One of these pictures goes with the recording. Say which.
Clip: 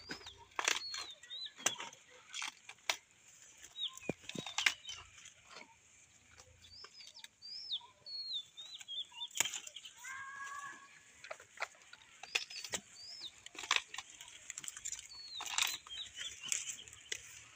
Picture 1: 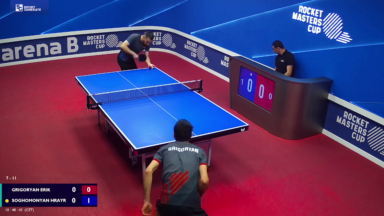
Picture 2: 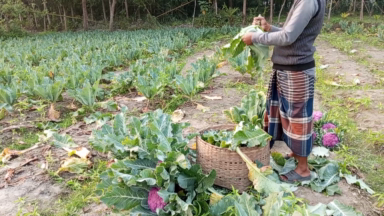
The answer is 2